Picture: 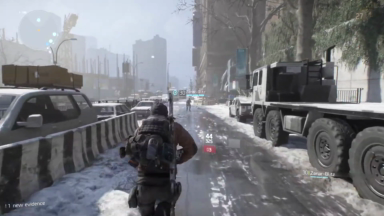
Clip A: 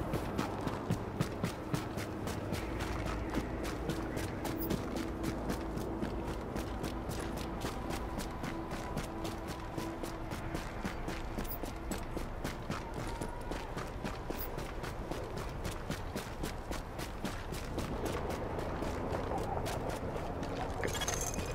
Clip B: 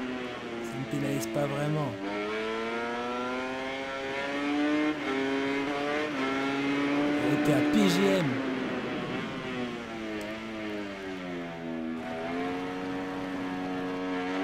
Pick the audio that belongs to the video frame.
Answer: A